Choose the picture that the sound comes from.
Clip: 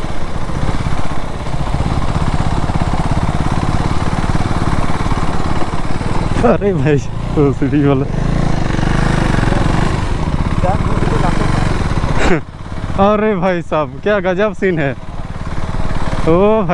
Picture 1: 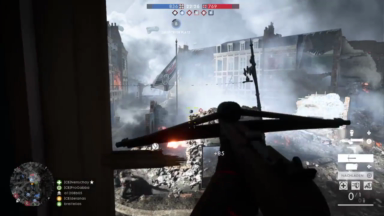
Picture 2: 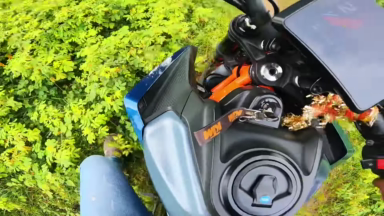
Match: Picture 2